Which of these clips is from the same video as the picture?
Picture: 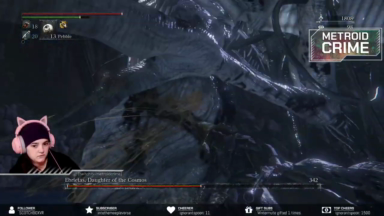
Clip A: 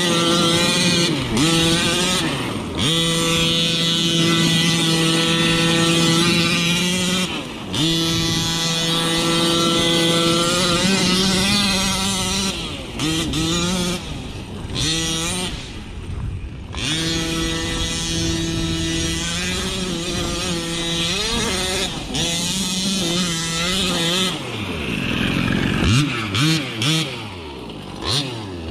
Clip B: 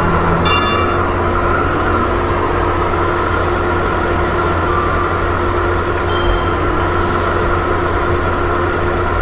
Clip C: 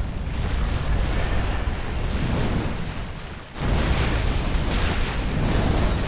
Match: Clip C